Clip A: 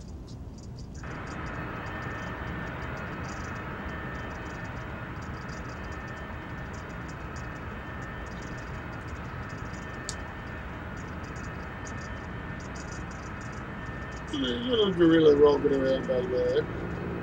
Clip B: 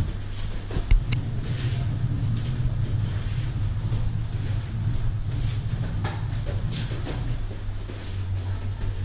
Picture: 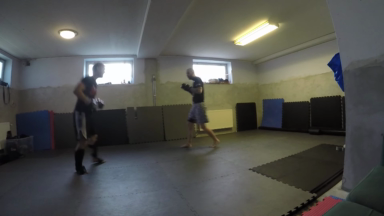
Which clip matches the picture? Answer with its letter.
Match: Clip B